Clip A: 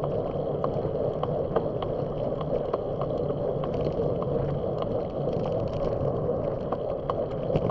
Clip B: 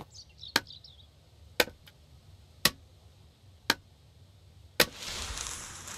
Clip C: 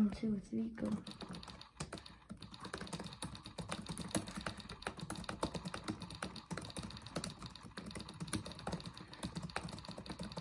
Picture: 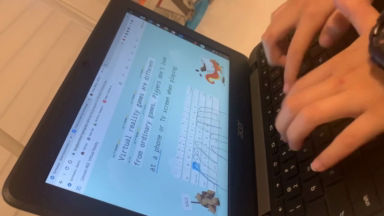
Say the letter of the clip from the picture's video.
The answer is C